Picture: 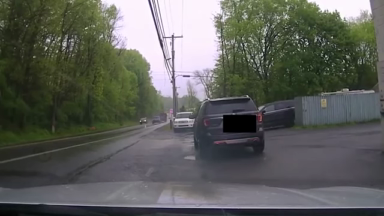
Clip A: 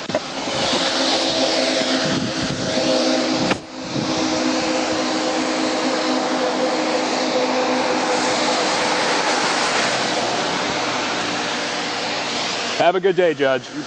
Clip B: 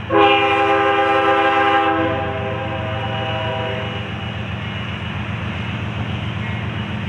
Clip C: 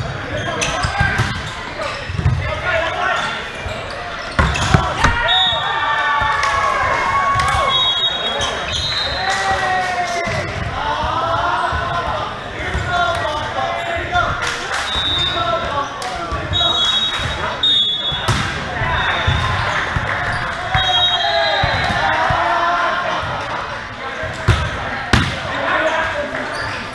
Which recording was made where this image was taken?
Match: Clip A